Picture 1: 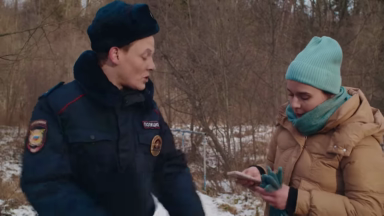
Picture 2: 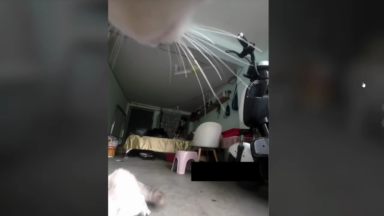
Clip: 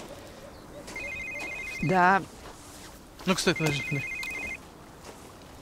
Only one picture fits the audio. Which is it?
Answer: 1